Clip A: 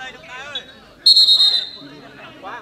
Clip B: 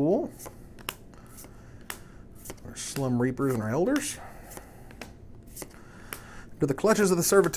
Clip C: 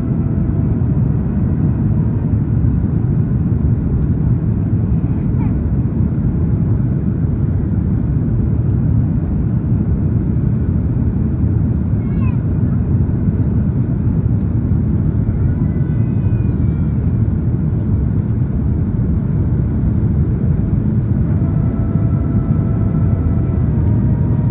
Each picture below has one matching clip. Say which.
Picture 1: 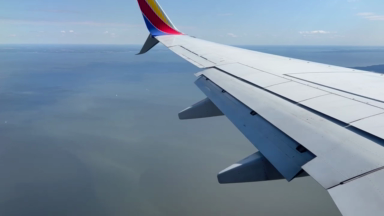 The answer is C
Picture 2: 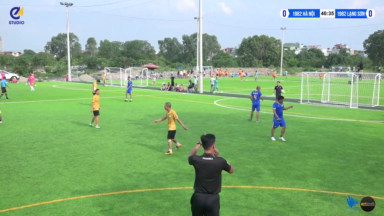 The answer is A